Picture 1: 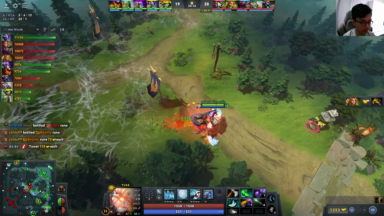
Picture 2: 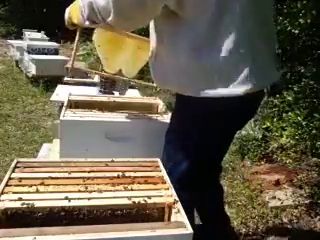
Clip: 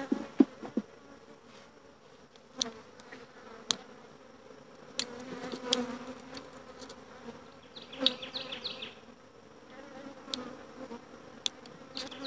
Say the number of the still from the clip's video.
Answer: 2